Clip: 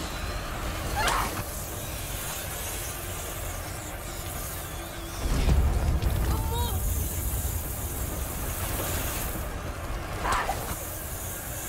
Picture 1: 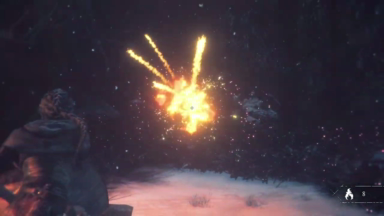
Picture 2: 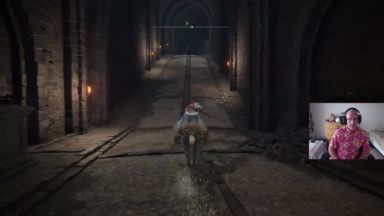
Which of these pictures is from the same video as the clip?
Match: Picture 1